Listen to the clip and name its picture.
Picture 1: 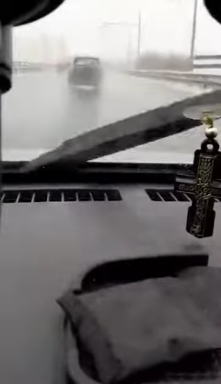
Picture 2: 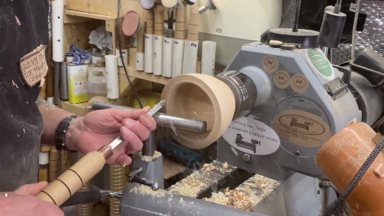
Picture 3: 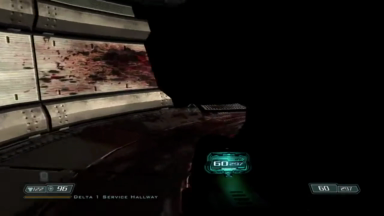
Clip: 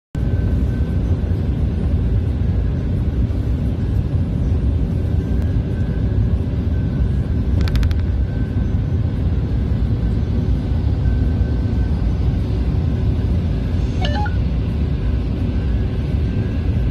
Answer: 1